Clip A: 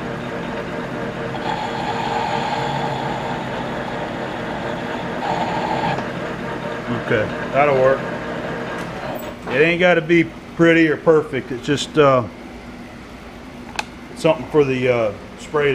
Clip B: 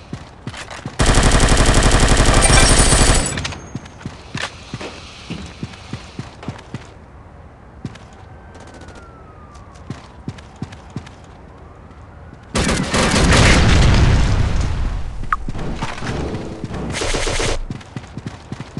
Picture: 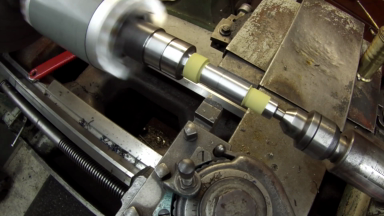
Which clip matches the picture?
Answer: A